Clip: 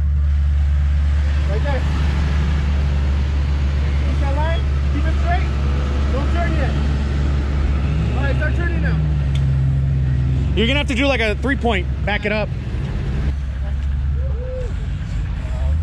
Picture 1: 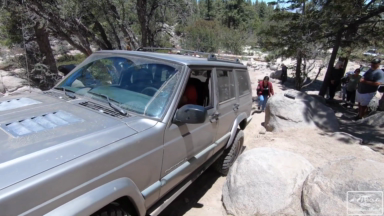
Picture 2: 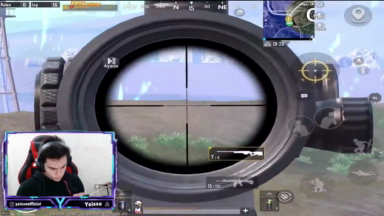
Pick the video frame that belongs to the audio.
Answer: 1